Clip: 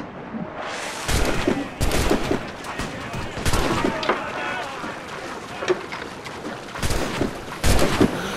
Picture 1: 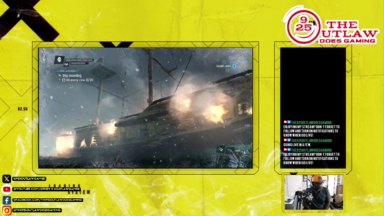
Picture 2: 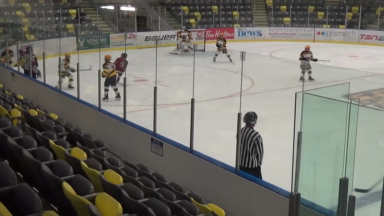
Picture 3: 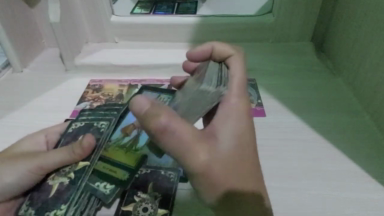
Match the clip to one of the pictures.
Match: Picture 1